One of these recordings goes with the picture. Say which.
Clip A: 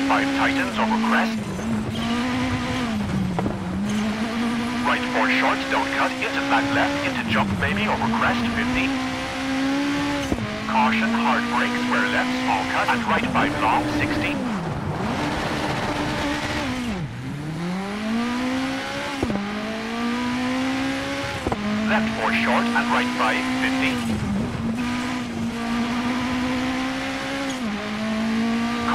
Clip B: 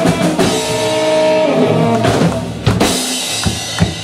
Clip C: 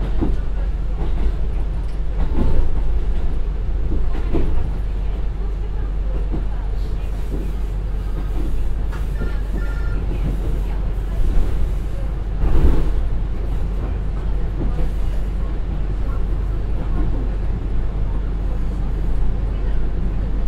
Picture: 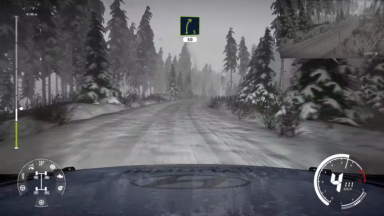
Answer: A